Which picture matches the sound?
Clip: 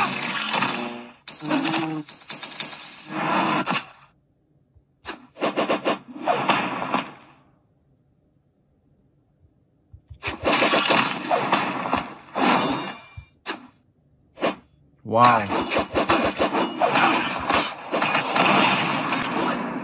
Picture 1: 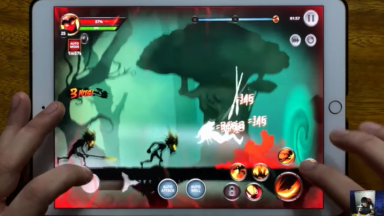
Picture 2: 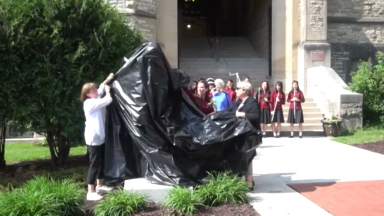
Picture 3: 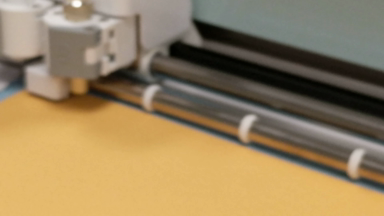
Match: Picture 1